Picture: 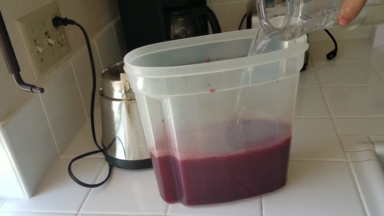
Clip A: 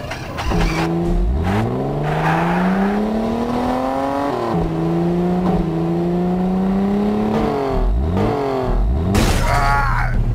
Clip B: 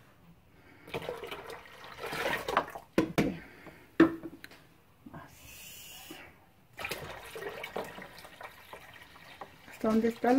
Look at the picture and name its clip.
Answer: B